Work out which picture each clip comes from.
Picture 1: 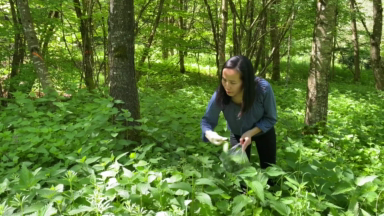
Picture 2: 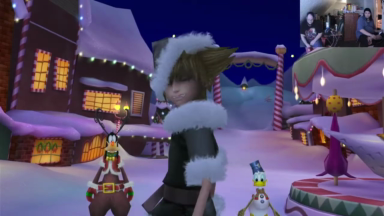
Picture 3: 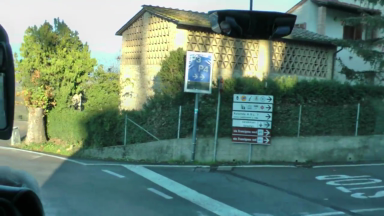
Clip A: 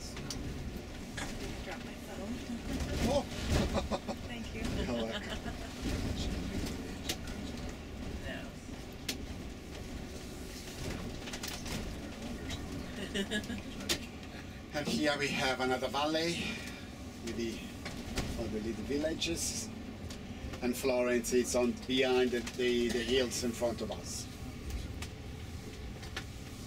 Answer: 3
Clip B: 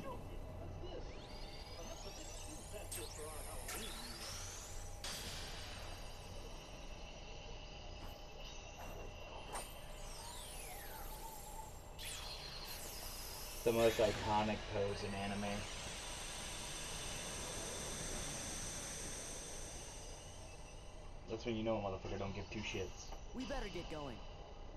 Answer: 2